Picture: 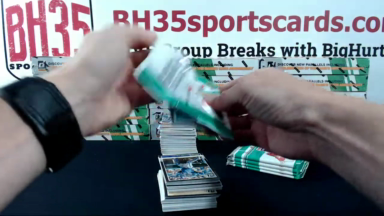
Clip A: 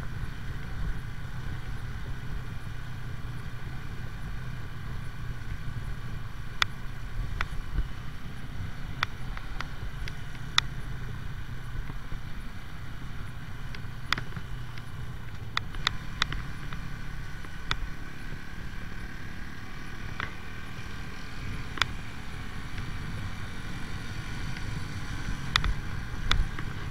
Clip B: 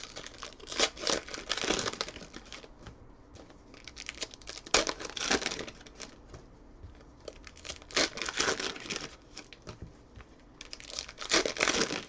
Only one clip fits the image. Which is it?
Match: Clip B